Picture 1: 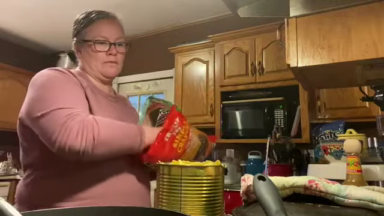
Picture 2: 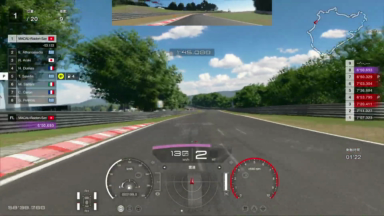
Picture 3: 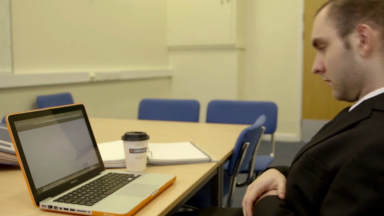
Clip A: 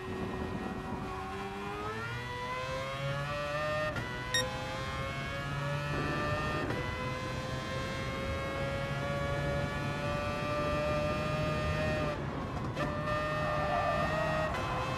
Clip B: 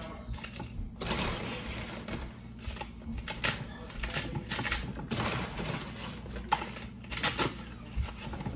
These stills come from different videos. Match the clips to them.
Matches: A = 2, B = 1